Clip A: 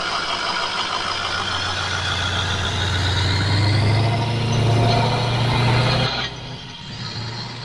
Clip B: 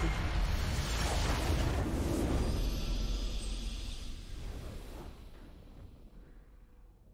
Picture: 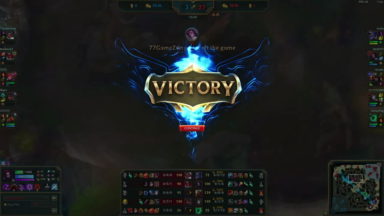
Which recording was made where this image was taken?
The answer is B